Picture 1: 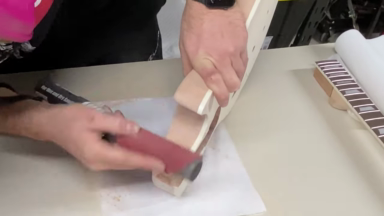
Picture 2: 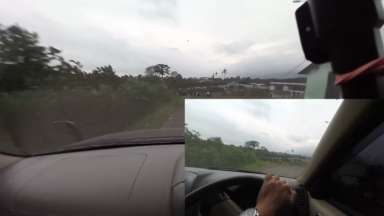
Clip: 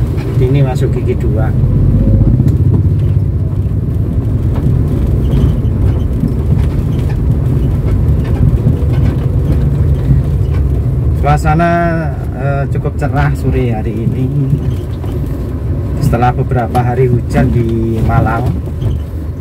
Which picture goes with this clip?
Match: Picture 2